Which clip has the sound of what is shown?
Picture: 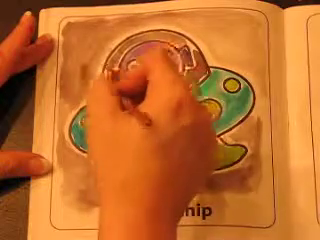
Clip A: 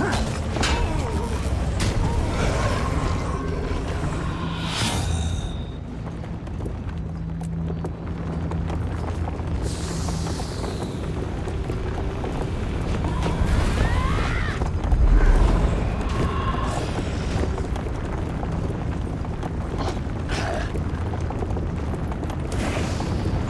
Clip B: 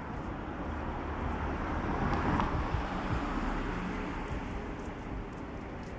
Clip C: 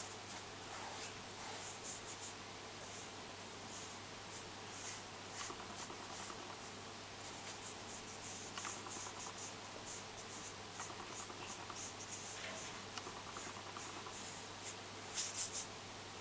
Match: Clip C